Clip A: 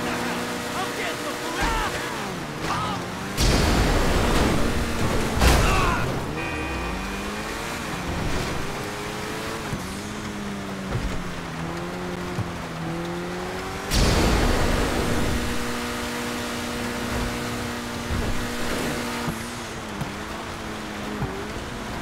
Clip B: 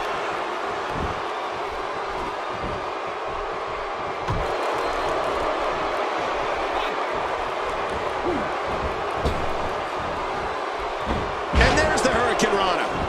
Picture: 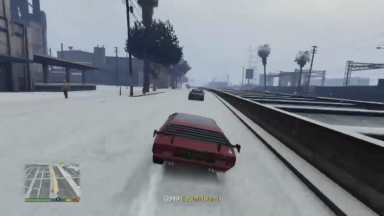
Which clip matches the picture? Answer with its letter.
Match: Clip A